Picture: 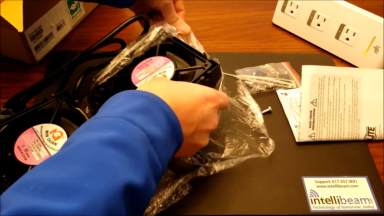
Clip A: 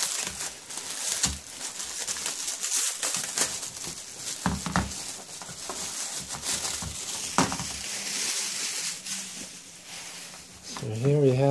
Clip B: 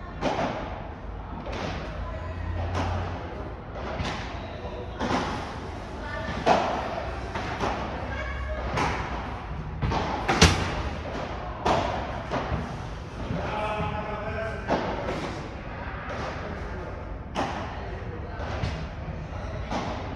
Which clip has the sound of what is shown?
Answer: A